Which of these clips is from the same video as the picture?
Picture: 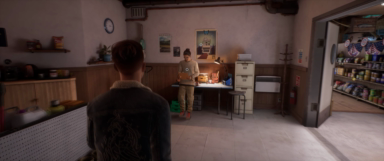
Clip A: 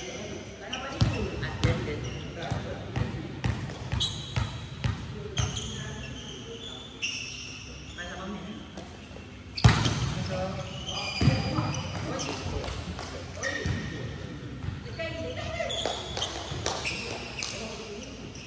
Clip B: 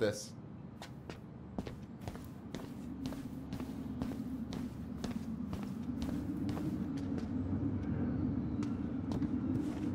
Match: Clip B